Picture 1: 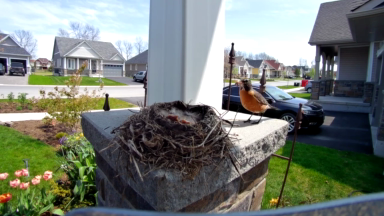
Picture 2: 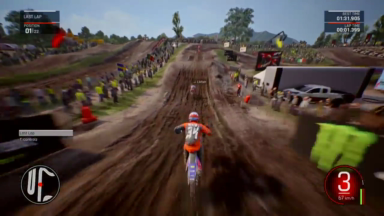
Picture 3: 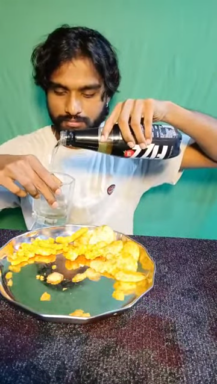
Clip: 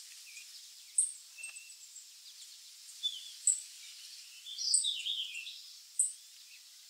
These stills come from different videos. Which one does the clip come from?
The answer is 1